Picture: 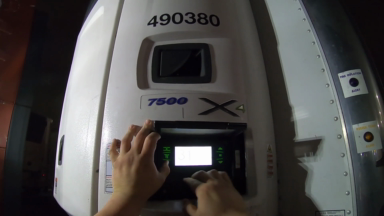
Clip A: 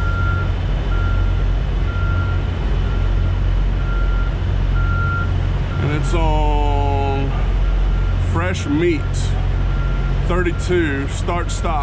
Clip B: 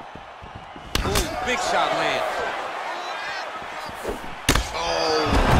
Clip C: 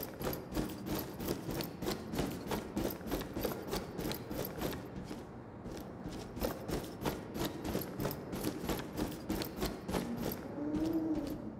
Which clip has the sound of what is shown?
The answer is A